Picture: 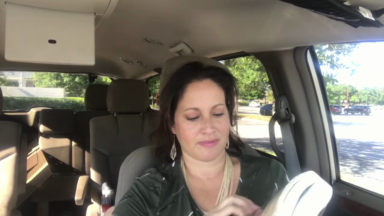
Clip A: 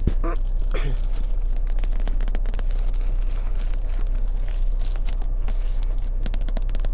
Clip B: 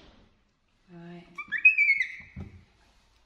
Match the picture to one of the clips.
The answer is A